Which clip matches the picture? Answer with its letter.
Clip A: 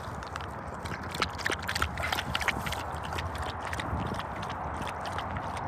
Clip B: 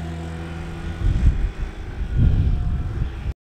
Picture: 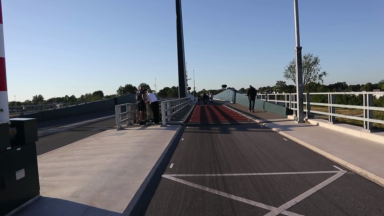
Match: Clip B